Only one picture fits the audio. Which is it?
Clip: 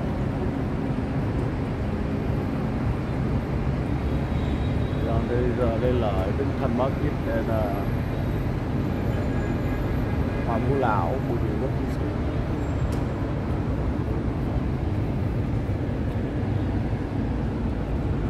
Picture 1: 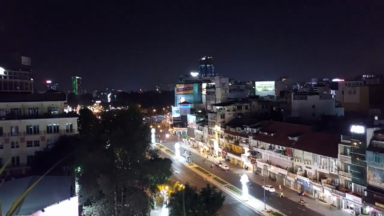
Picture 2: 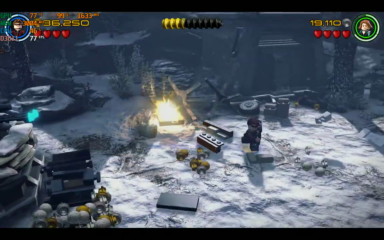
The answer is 1